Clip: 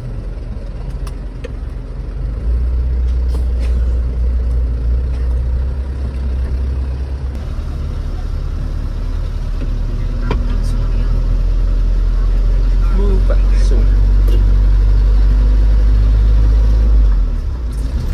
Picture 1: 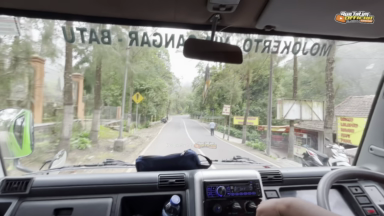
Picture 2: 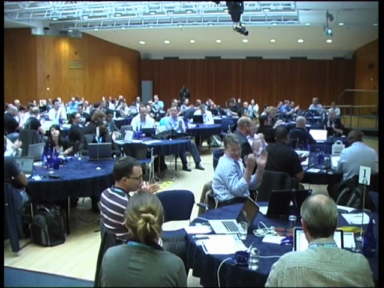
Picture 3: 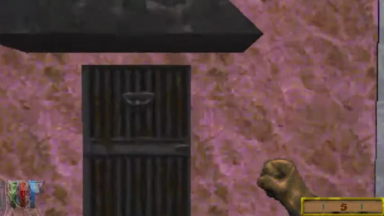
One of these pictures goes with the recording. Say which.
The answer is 1